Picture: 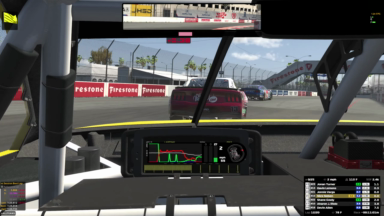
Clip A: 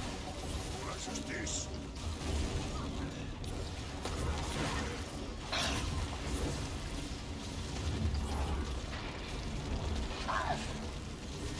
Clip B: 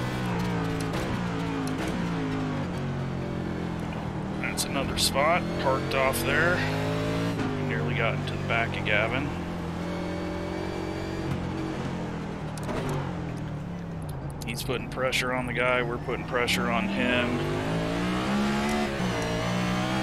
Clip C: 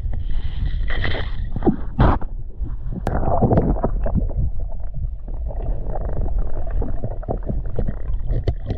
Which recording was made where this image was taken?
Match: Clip B